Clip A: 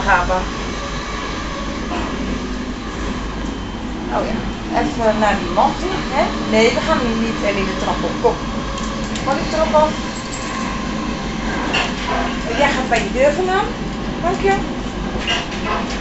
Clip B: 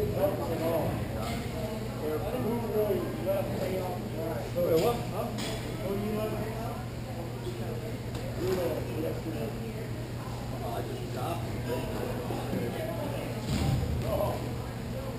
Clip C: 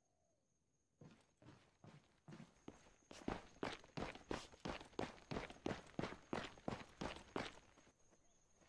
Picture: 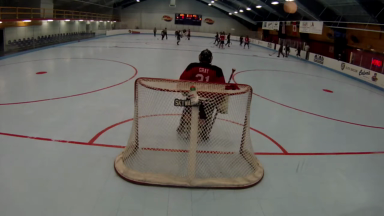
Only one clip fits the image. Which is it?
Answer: B